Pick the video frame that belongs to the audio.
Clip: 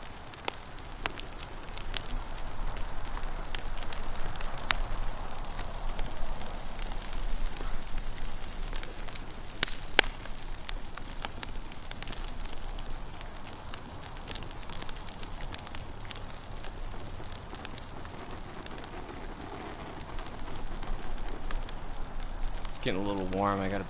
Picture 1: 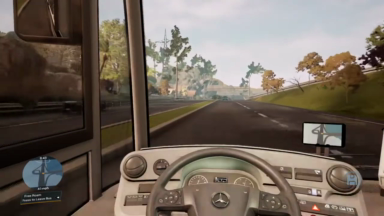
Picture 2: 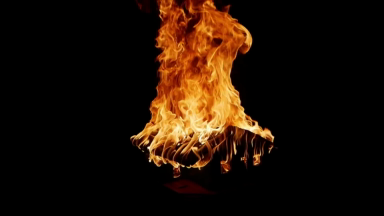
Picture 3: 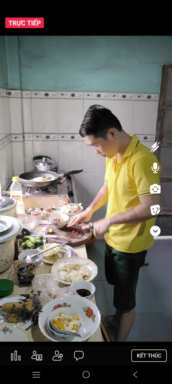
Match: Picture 2